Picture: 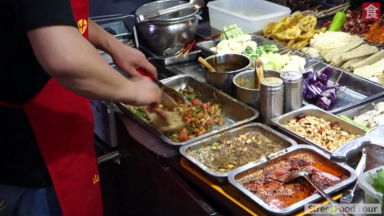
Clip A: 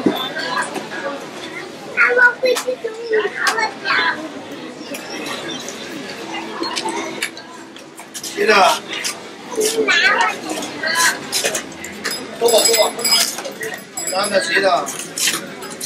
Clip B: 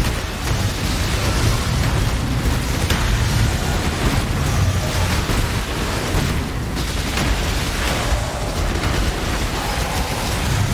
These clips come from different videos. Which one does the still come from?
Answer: A